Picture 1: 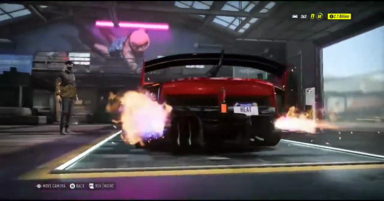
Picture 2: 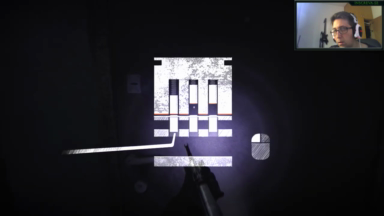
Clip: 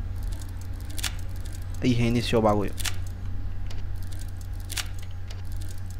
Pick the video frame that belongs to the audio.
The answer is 2